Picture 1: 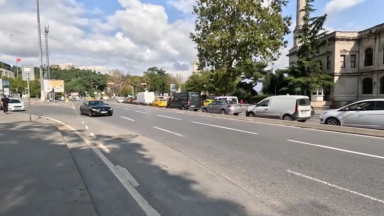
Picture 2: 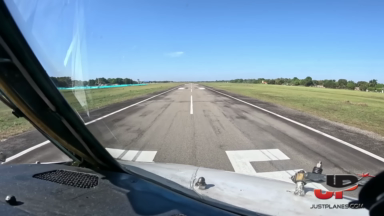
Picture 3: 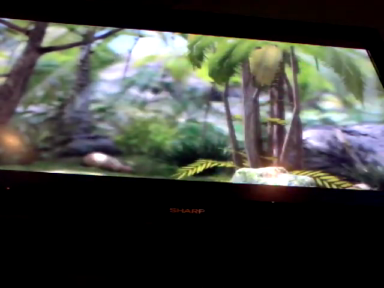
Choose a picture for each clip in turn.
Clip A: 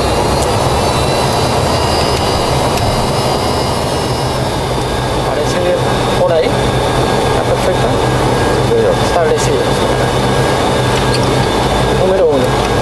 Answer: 2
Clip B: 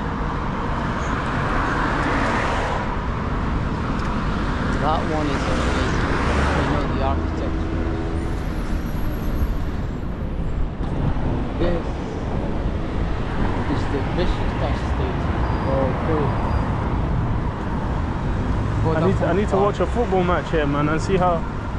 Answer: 1